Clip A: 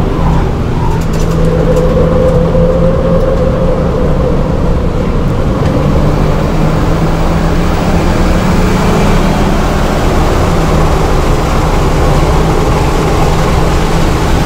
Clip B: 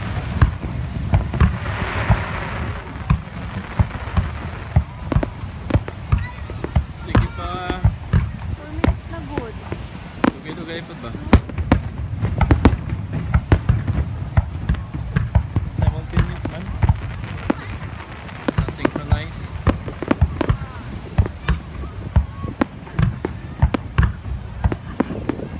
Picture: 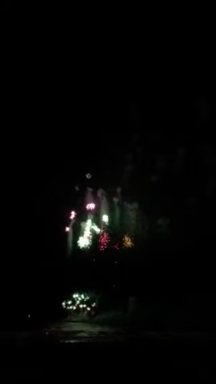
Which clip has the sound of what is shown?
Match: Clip B